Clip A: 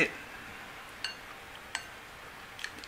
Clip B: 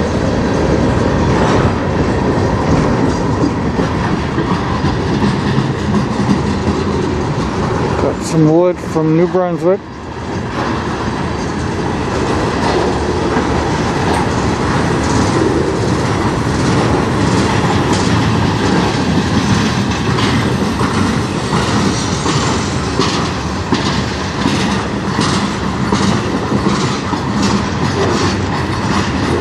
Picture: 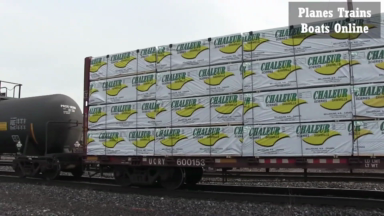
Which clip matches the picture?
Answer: B